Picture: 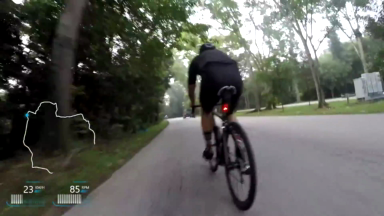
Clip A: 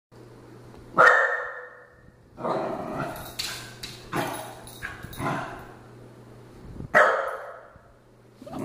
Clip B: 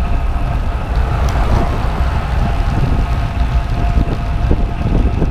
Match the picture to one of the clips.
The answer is B